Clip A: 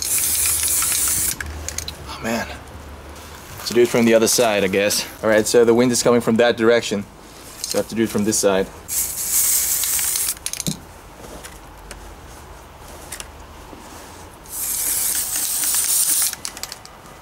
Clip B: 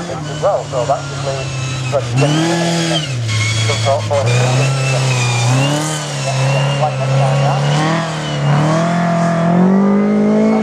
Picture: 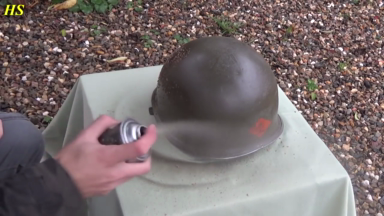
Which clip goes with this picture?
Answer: A